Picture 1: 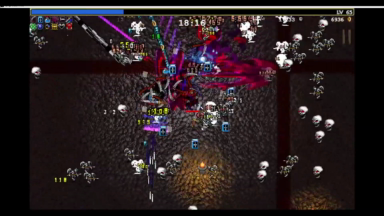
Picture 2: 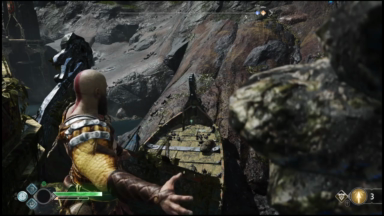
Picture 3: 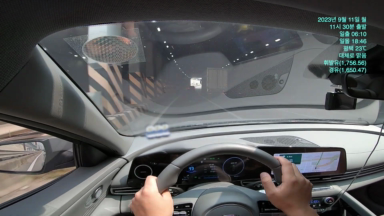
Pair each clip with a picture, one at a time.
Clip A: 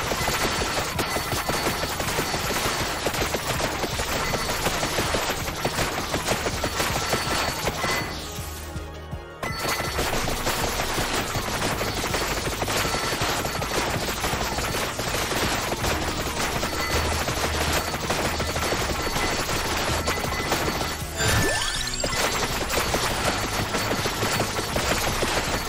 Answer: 1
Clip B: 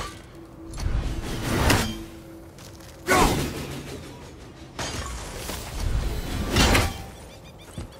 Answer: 2